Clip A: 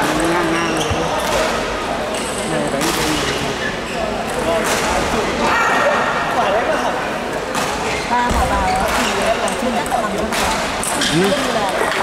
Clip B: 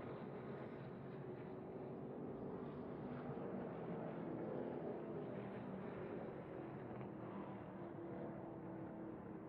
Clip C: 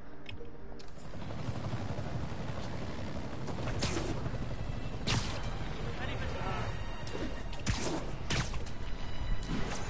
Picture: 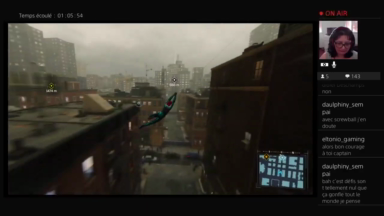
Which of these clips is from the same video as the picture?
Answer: C